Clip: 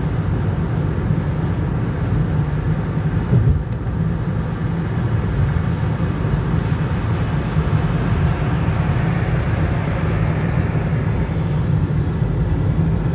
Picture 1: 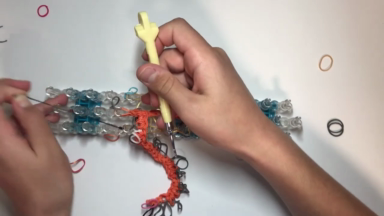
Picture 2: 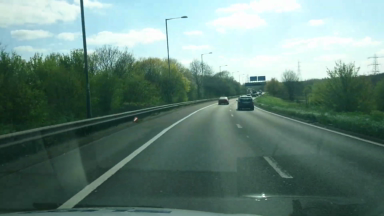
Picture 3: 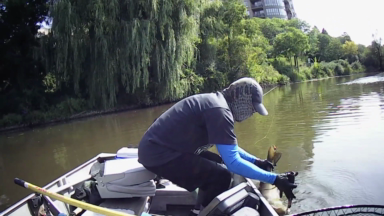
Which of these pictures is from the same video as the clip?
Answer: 2